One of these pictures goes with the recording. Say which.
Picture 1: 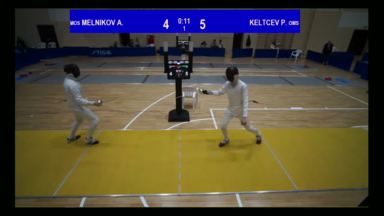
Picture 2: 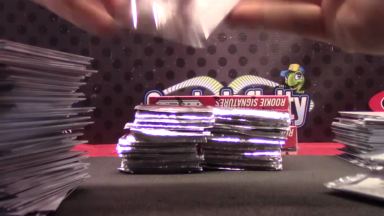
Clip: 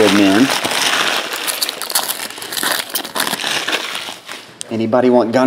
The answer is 2